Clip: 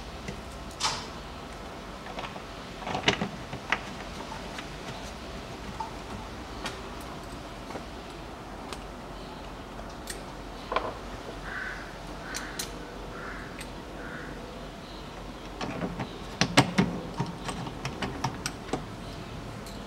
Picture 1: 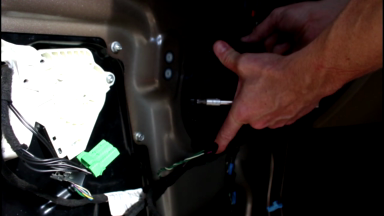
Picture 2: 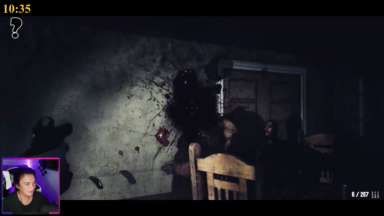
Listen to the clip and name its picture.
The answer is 1